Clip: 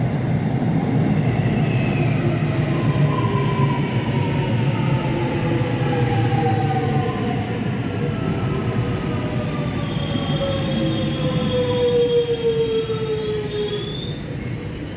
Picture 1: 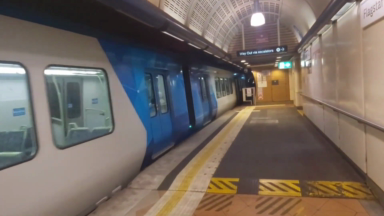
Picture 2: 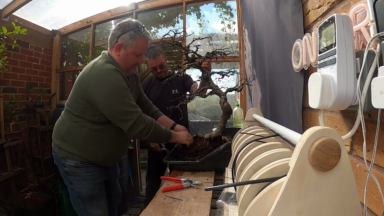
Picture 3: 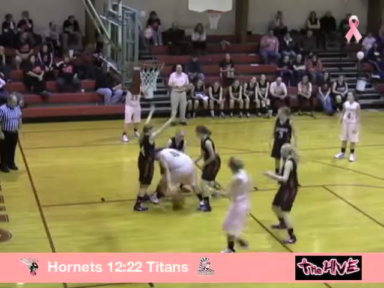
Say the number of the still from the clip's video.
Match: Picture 1